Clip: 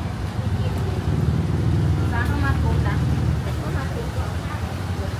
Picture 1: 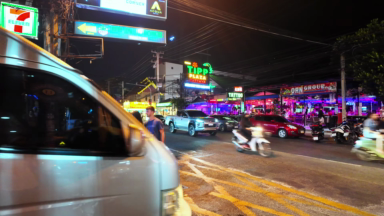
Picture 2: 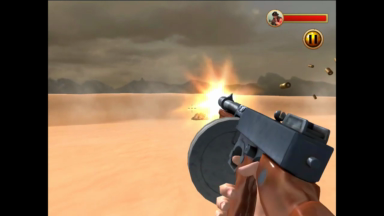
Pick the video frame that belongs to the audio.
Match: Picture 1